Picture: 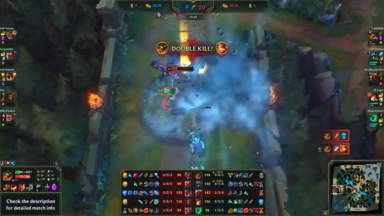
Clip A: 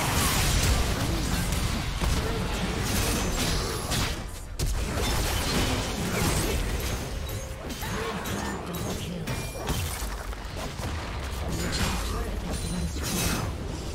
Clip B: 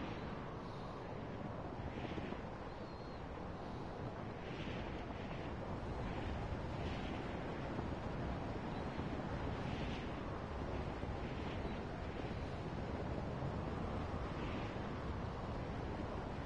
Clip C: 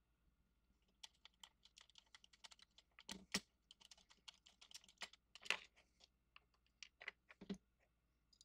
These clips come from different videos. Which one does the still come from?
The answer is A